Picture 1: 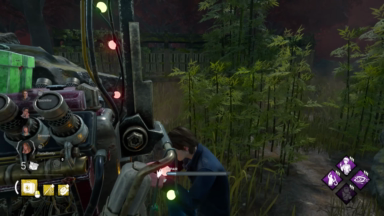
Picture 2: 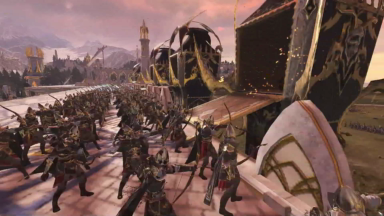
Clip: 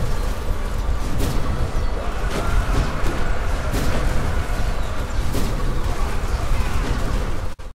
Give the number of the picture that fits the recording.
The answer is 2